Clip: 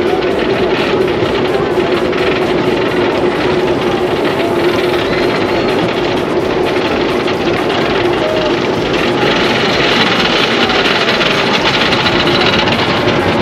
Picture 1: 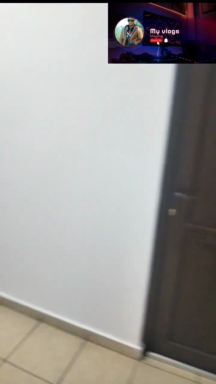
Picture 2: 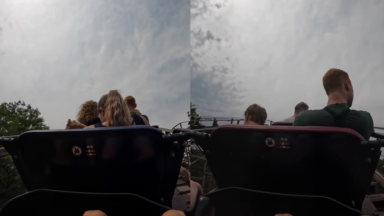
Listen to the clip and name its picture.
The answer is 2